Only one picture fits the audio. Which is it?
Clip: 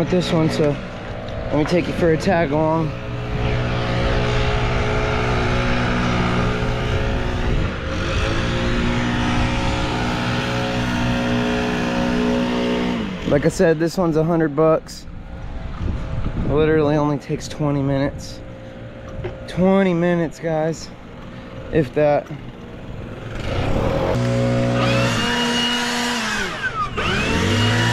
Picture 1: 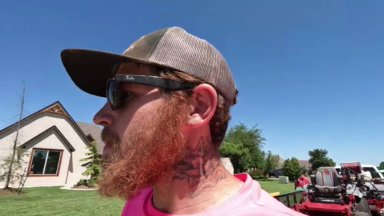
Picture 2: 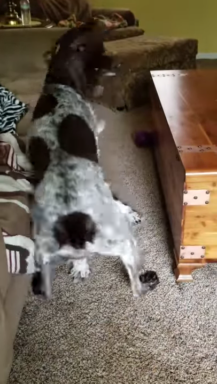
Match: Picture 1